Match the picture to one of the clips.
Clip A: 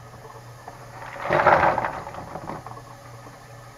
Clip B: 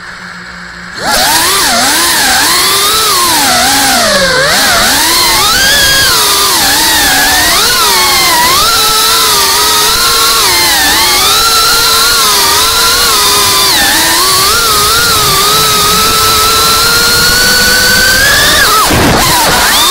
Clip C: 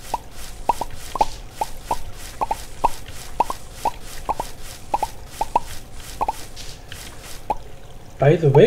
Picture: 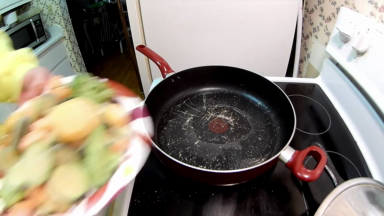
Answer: A